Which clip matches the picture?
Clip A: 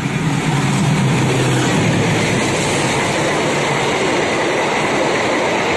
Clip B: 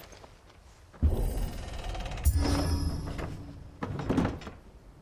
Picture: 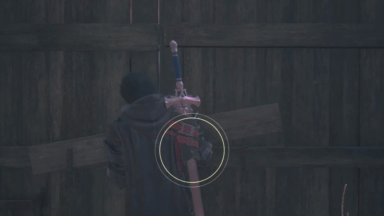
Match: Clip B